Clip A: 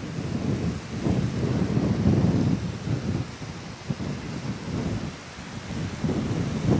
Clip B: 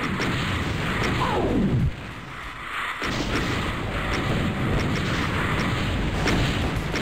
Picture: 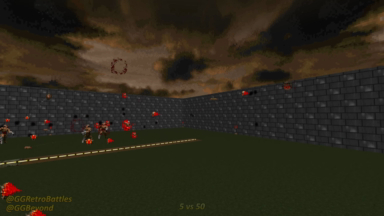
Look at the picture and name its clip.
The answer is B